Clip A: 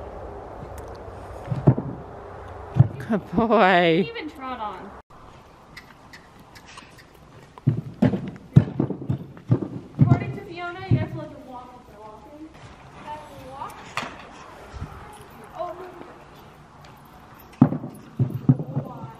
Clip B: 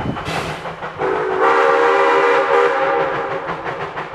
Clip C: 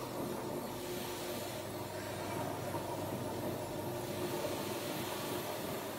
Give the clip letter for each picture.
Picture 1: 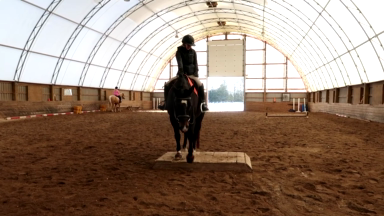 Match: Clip A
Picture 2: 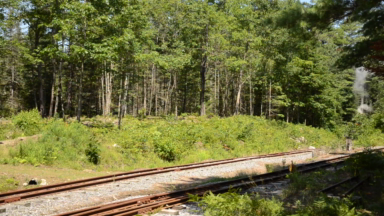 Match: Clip B